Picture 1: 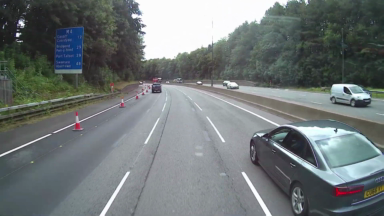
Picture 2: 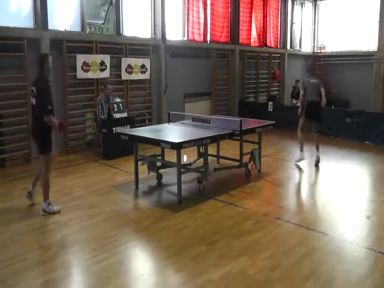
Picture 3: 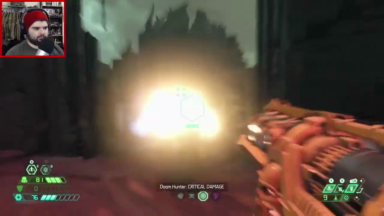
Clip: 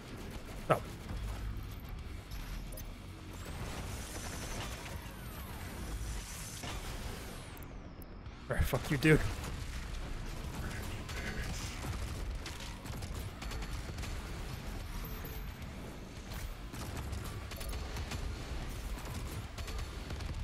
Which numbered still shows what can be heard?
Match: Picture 3